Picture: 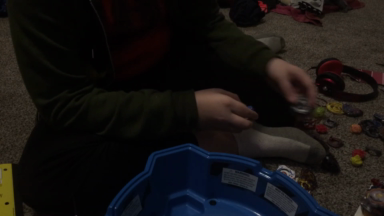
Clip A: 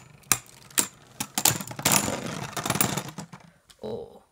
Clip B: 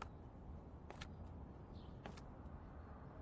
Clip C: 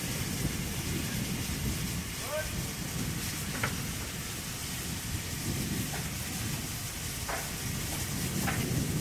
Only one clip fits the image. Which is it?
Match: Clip A